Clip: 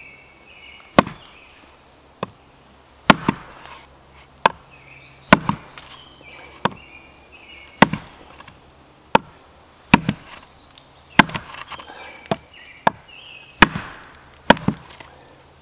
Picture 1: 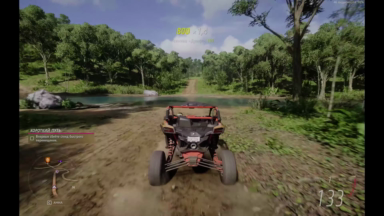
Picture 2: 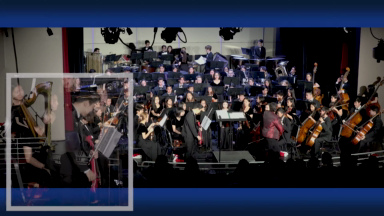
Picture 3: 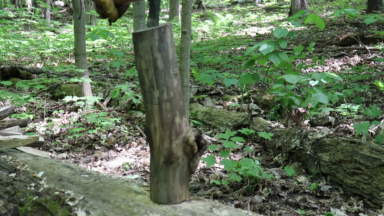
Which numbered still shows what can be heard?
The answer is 3